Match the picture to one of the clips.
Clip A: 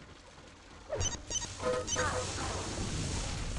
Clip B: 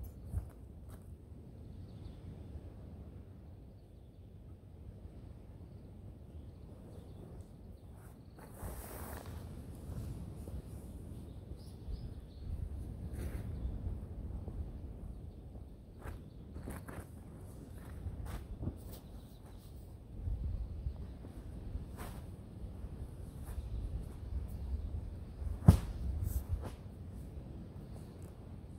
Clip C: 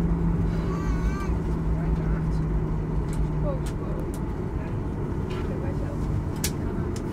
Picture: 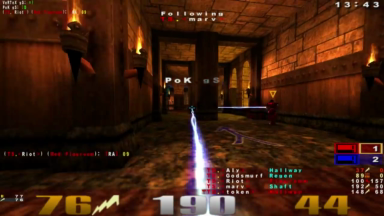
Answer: A